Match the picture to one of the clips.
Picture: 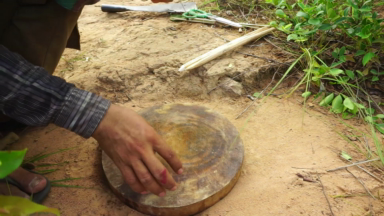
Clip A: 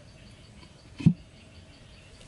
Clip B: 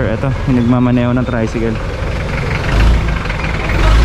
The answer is A